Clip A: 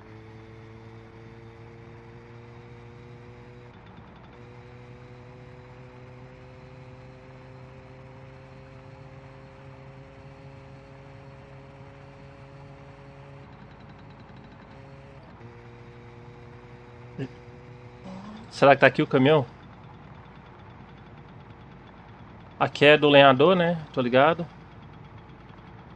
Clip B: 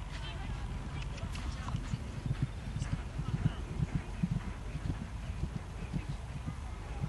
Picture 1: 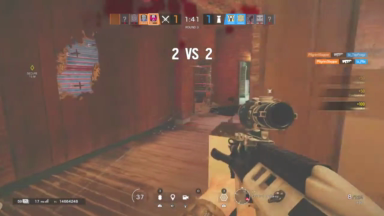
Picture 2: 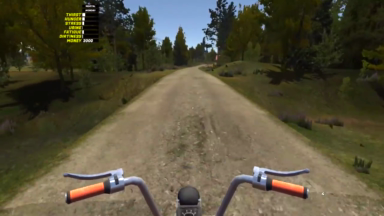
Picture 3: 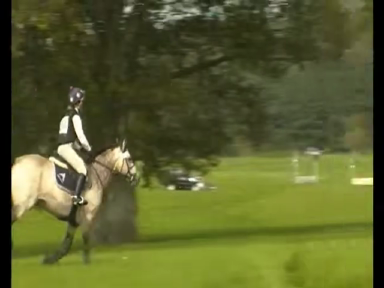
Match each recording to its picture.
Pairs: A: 2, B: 3